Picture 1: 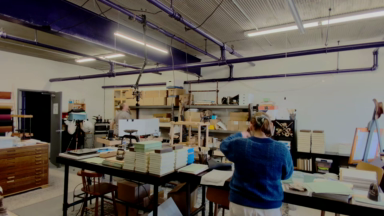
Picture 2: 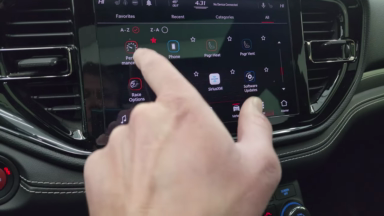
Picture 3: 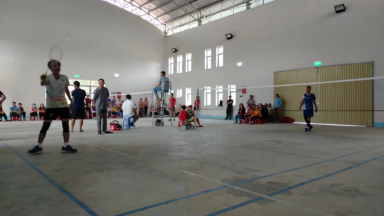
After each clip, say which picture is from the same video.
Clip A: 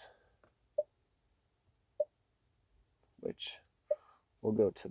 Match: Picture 2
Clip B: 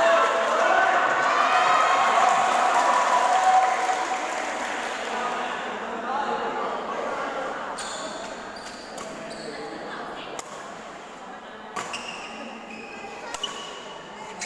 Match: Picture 3